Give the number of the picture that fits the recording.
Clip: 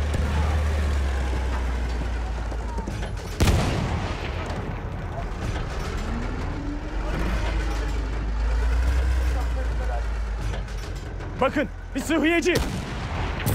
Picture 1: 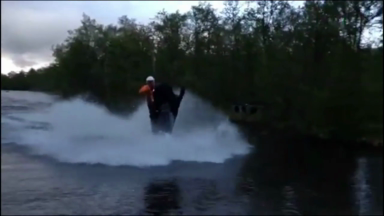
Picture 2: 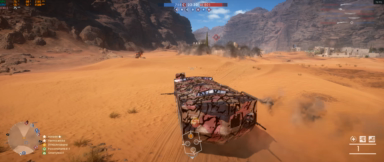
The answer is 2